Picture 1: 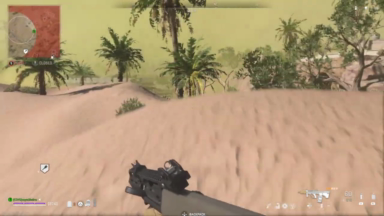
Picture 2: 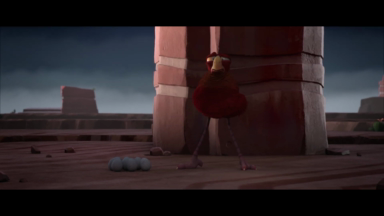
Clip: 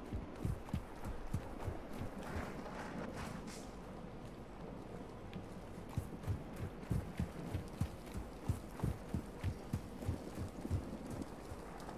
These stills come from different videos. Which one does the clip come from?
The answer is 1